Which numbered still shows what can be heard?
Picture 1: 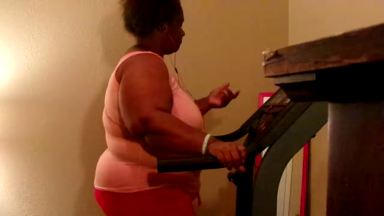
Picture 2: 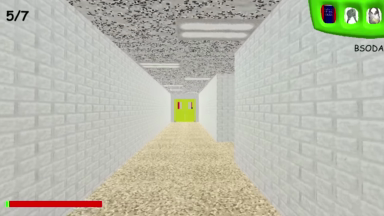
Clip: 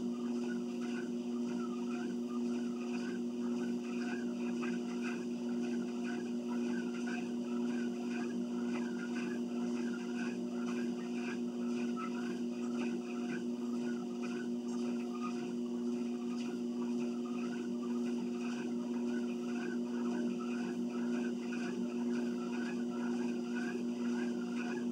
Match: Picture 1